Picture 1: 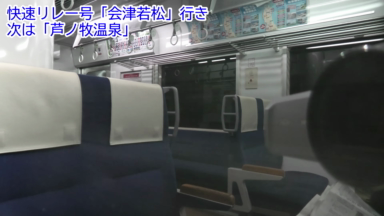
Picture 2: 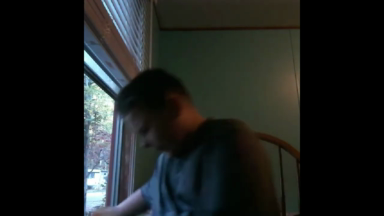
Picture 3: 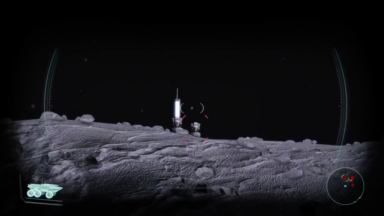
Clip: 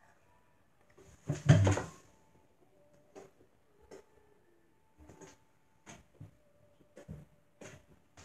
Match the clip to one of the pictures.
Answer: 2